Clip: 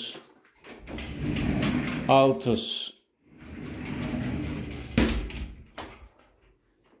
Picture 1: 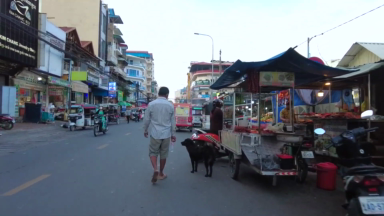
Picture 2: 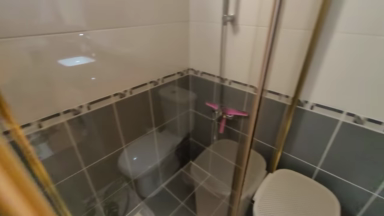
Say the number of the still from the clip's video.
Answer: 2